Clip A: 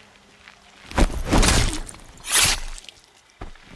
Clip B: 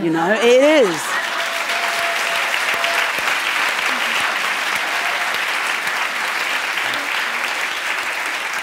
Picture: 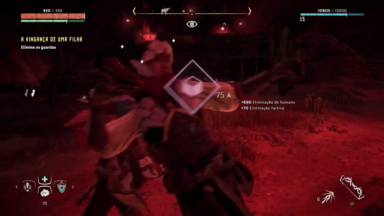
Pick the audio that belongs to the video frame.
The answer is A